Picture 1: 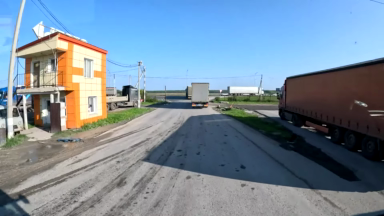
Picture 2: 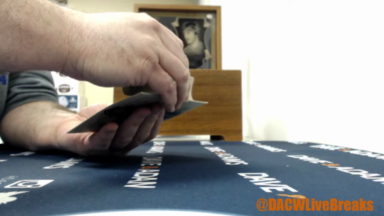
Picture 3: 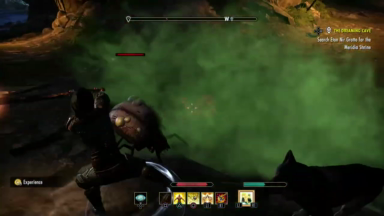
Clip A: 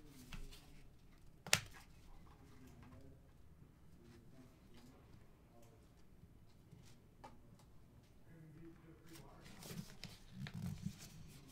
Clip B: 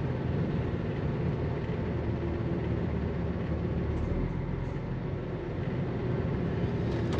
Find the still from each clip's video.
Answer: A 2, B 1